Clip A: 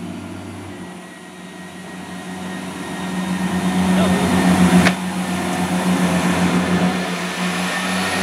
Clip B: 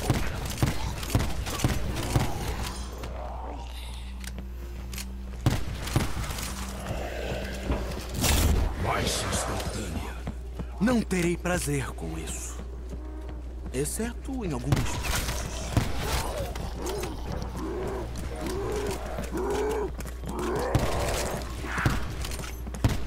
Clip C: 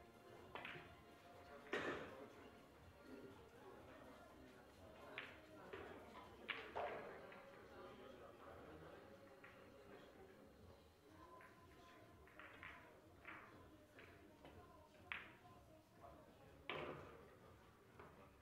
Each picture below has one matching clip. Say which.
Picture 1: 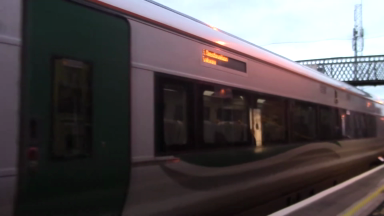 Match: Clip A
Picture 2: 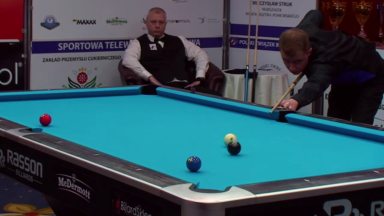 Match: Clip C